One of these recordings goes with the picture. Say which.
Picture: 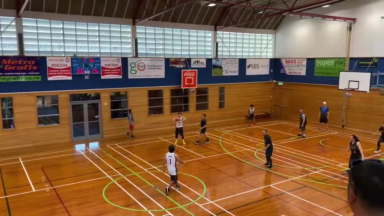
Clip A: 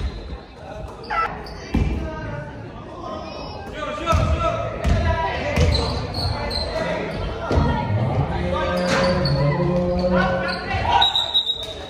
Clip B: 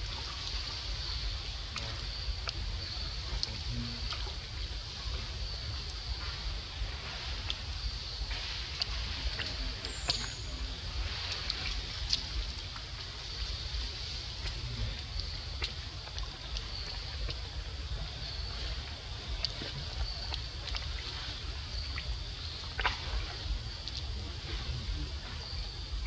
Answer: A